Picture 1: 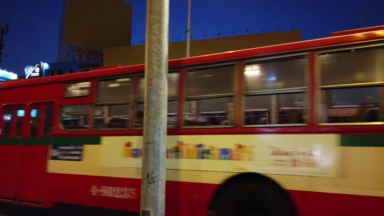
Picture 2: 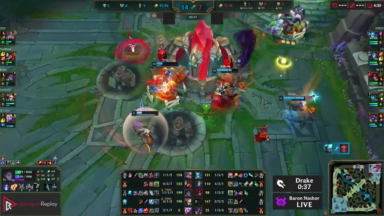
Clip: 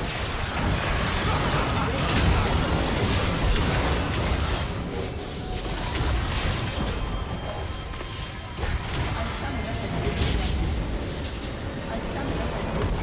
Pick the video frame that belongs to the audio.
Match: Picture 2